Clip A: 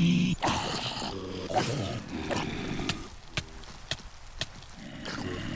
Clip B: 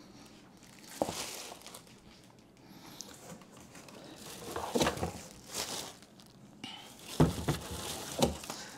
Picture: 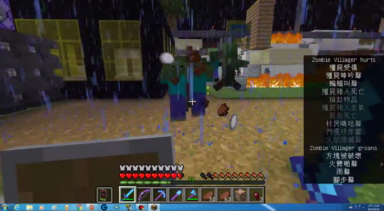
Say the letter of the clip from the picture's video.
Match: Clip A